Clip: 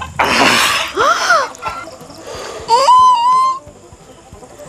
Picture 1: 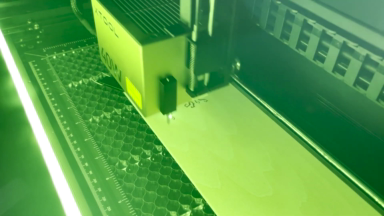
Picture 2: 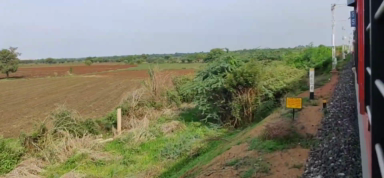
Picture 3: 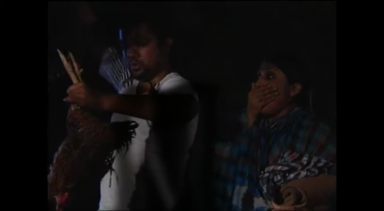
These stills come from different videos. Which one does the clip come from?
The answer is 3